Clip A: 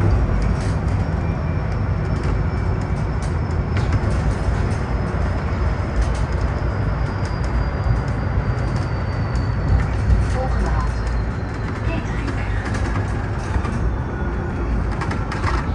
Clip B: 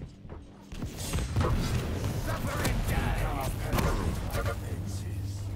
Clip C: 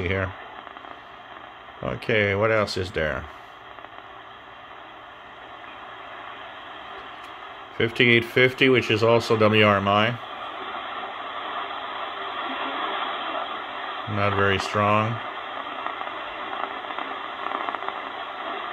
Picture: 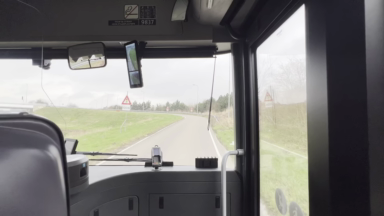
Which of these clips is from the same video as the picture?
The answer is A